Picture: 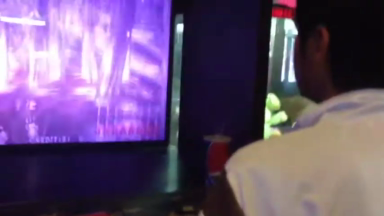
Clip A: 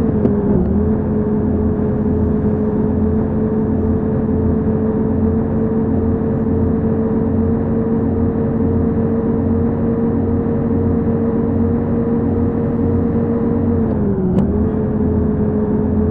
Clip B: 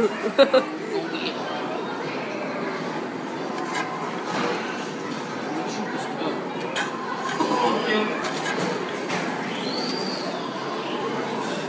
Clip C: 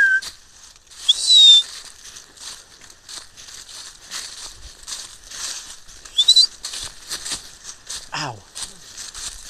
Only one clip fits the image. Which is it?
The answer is B